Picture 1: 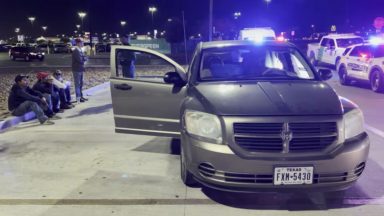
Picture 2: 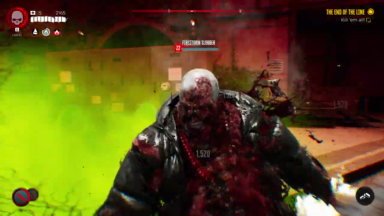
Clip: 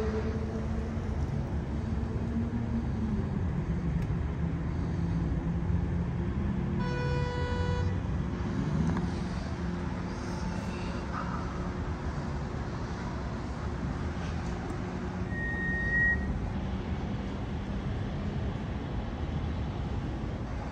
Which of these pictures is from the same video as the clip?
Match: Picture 1